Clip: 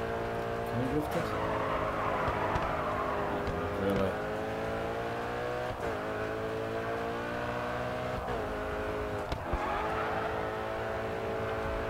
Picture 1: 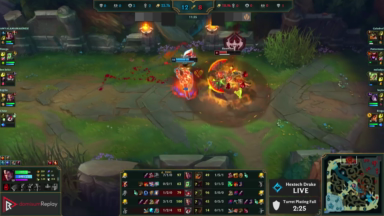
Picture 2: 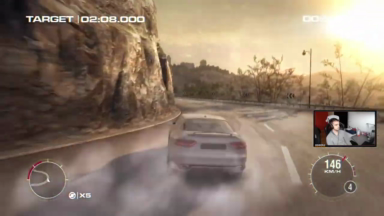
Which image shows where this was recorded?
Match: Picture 2